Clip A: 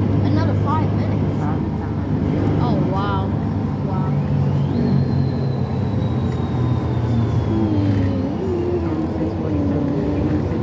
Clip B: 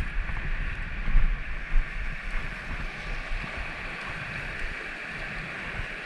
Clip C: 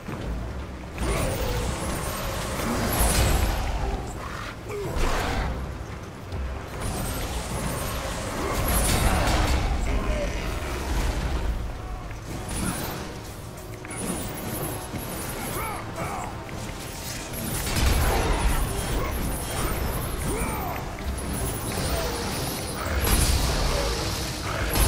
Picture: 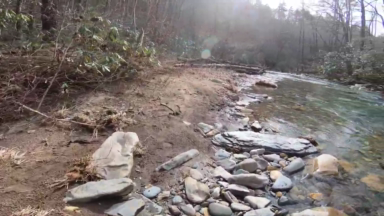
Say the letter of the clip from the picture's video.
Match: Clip B